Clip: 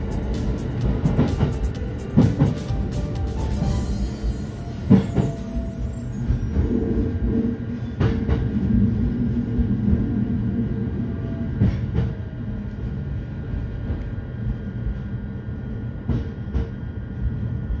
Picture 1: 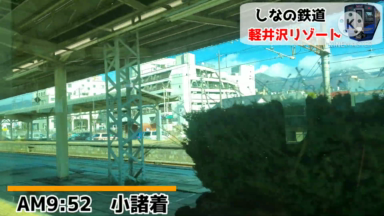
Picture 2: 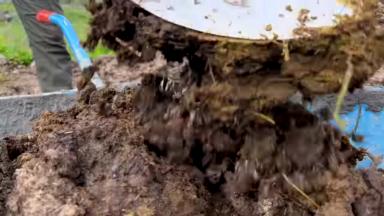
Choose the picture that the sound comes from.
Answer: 1